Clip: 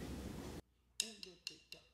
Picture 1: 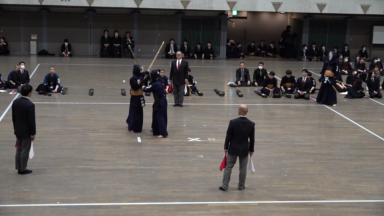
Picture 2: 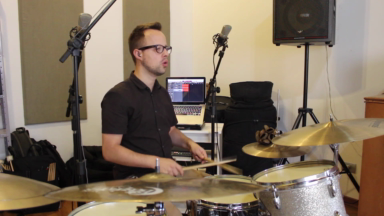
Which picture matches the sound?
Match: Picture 2